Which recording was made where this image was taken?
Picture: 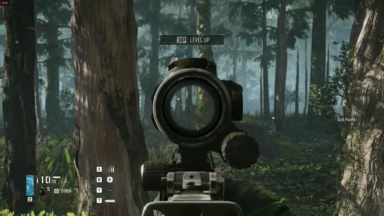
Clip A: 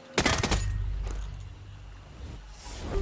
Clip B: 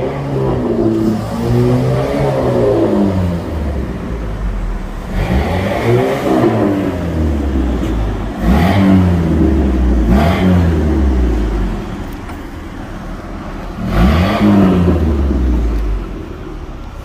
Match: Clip A